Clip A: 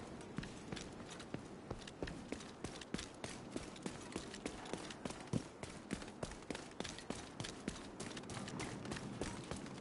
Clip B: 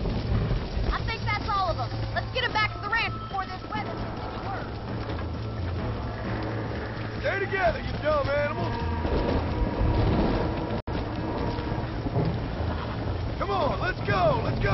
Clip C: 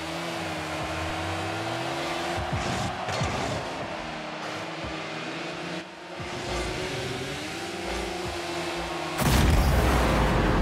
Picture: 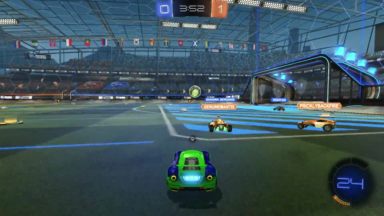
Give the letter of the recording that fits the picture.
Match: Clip C